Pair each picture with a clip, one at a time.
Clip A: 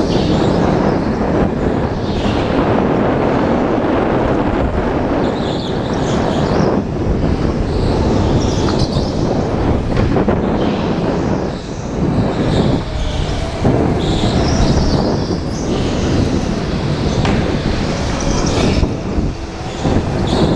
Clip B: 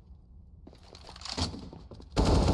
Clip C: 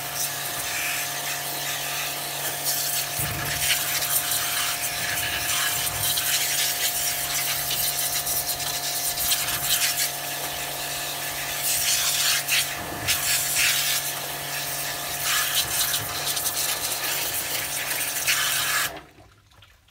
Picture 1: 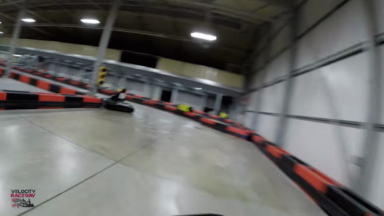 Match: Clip A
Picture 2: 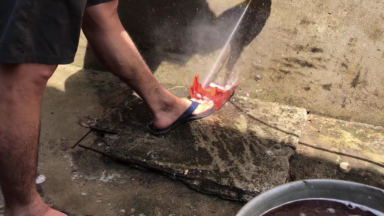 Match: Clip C